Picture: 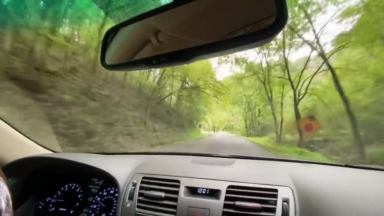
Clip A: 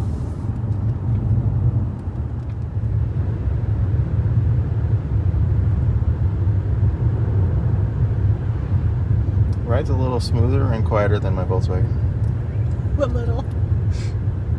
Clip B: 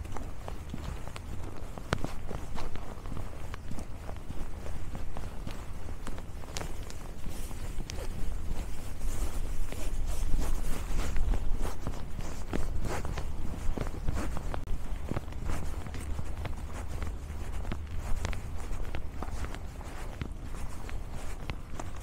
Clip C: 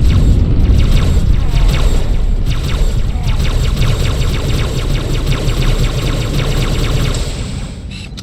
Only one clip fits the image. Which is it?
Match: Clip A